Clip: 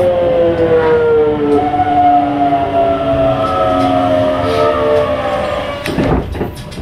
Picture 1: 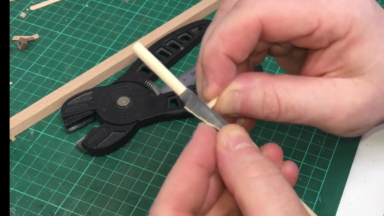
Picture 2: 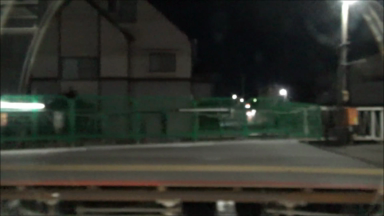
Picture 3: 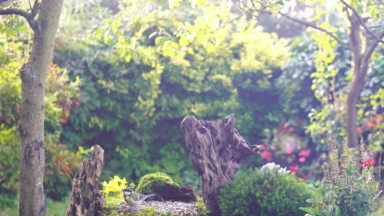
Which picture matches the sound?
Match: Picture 2